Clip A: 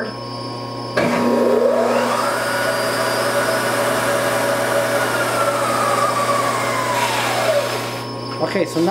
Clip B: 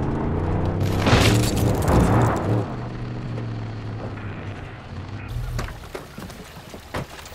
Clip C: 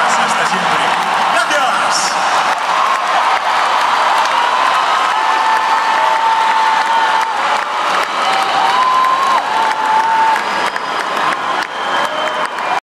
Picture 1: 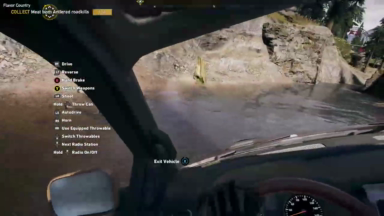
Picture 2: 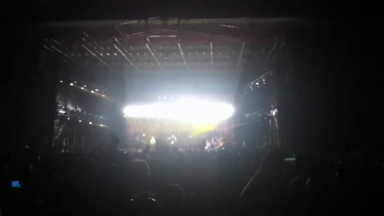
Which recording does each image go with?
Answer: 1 B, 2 C